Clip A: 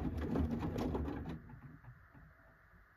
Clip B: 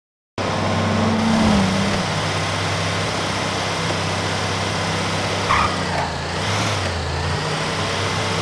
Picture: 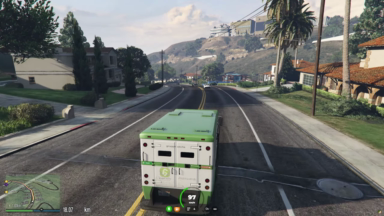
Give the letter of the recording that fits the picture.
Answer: B